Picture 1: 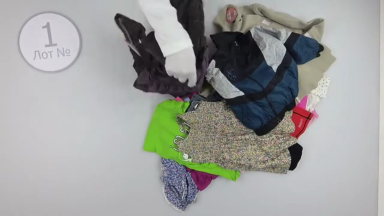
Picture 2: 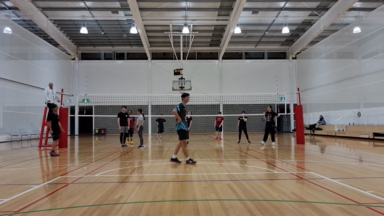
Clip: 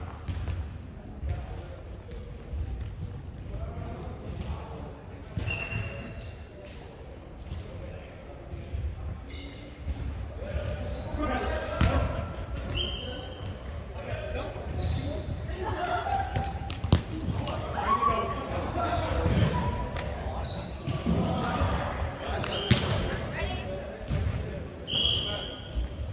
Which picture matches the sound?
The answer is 2